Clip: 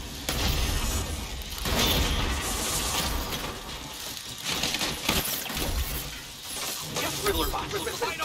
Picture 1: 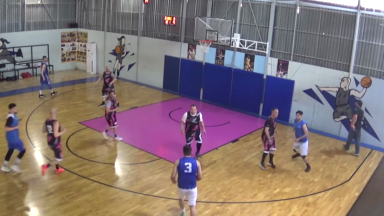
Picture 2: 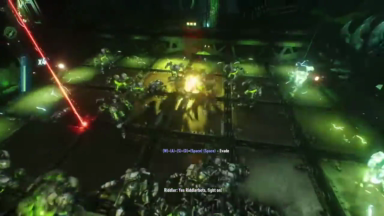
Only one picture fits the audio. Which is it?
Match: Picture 2